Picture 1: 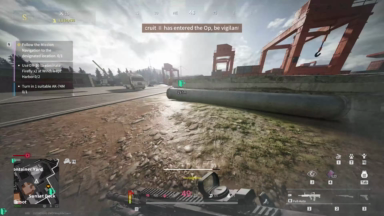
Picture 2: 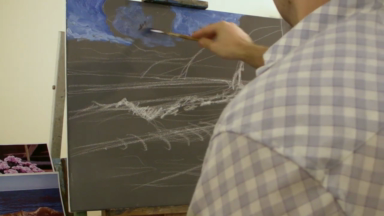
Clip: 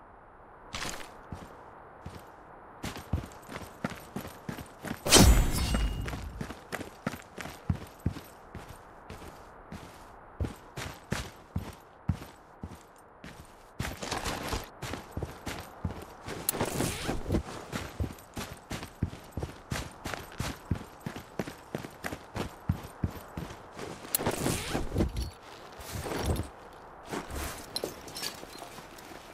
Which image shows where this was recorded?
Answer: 1